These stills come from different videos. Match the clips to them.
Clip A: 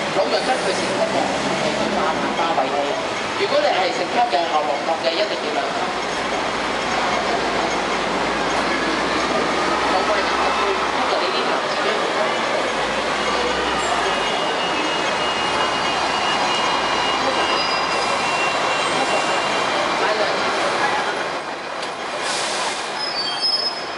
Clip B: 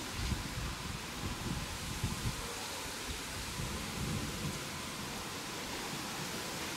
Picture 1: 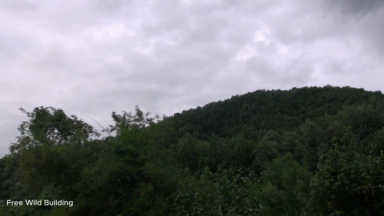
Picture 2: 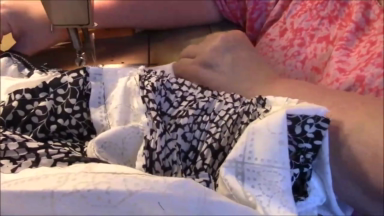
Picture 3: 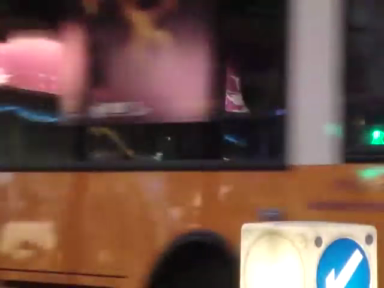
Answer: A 3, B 1